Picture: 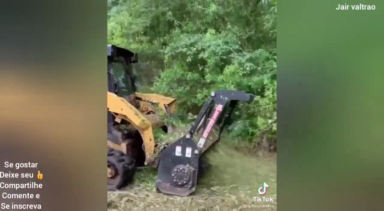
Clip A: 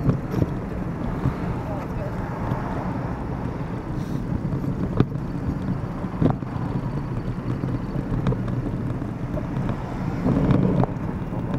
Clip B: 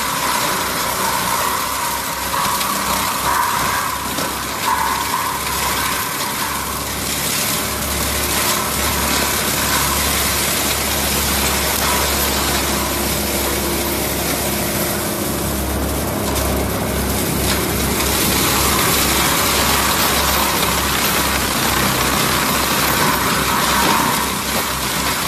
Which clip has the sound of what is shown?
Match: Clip B